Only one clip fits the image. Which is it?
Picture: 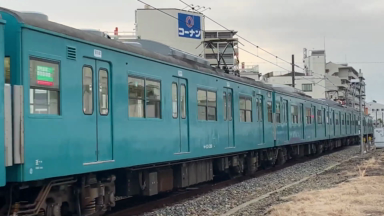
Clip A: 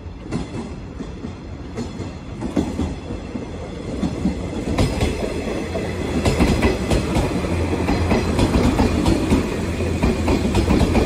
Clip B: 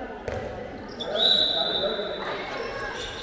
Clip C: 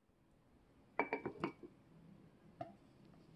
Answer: A